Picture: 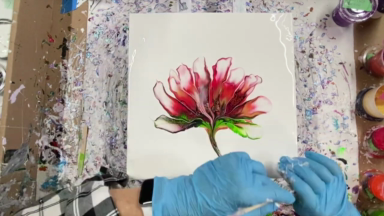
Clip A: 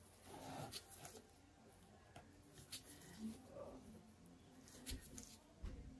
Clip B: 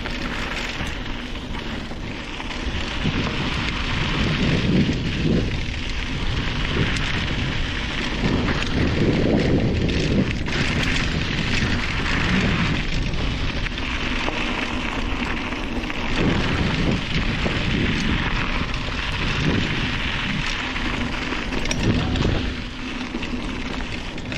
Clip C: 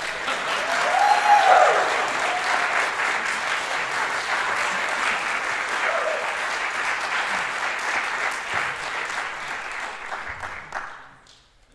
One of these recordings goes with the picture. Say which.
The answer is A